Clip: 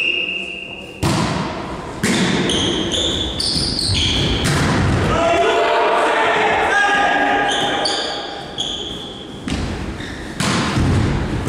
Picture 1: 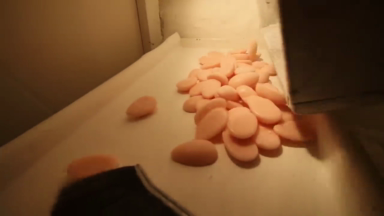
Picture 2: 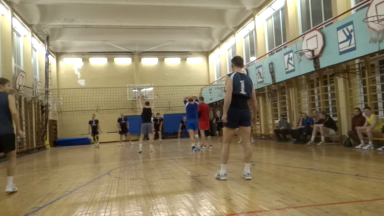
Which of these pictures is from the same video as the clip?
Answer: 2